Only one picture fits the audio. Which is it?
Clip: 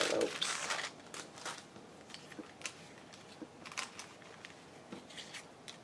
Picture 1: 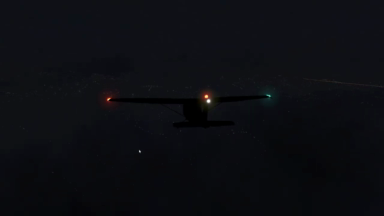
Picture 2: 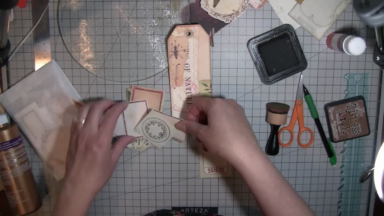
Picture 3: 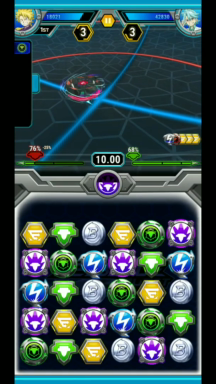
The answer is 2